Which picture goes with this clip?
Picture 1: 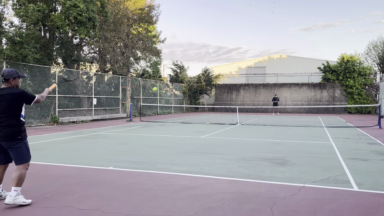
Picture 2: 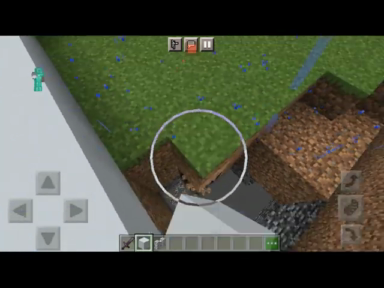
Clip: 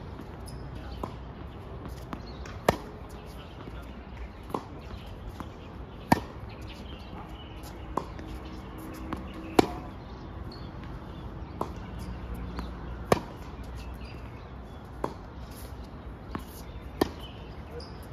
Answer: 1